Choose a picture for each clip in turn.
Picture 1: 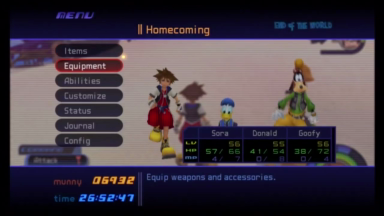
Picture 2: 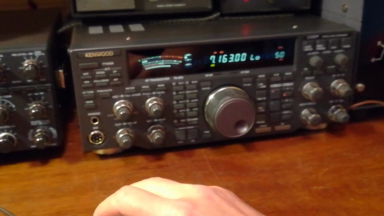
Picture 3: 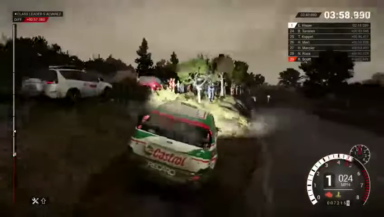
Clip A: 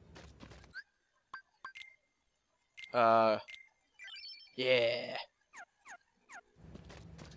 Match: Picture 1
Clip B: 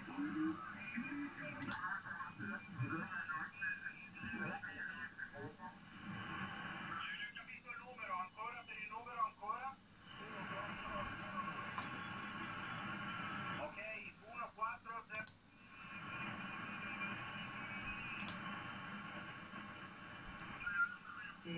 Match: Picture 2